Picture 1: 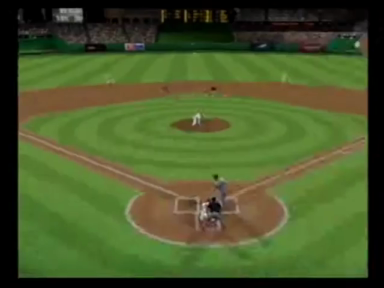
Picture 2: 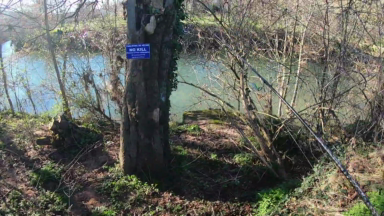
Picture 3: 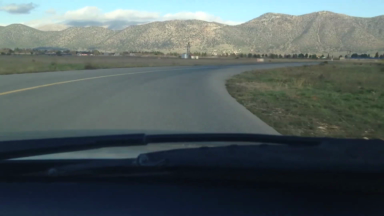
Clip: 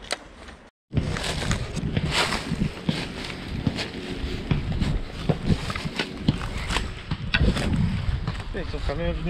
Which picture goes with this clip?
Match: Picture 2